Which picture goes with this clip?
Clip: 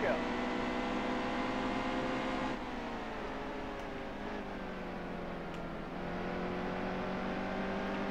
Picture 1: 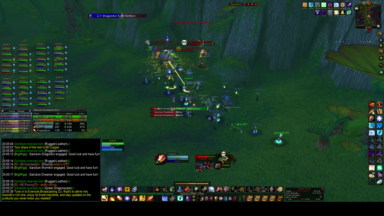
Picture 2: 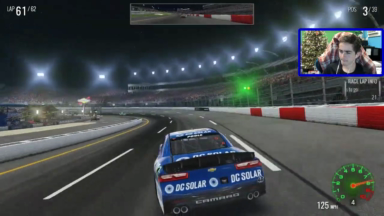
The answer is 2